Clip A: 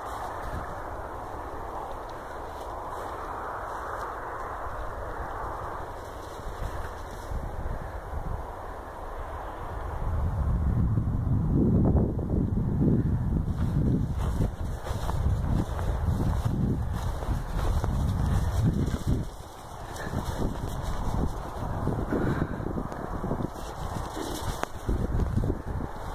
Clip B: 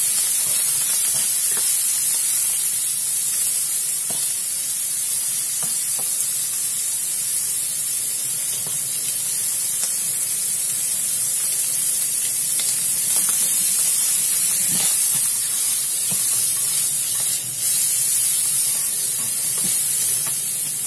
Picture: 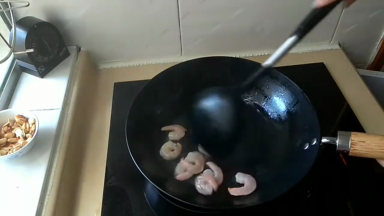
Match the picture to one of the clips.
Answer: B